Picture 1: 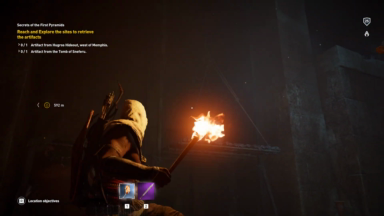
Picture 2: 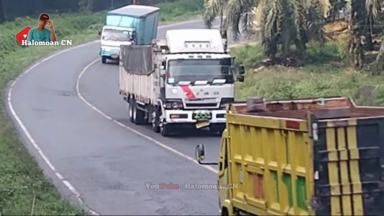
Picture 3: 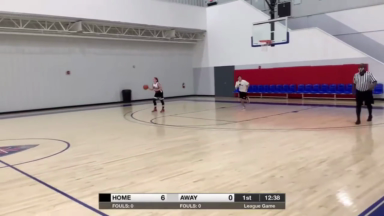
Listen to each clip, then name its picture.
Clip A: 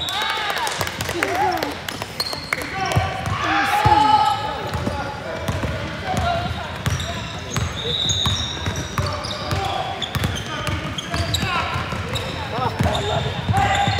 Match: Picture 3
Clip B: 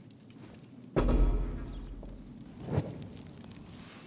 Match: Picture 1